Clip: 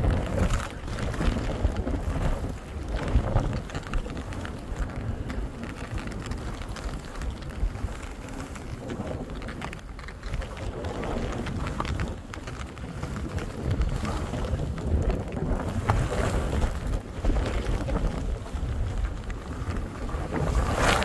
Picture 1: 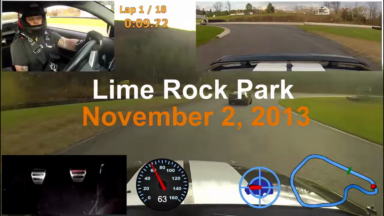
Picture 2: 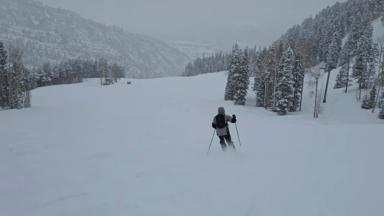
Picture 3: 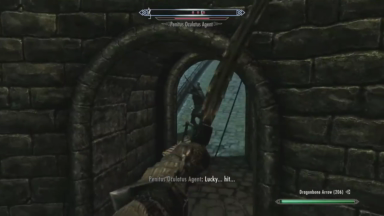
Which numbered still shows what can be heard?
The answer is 2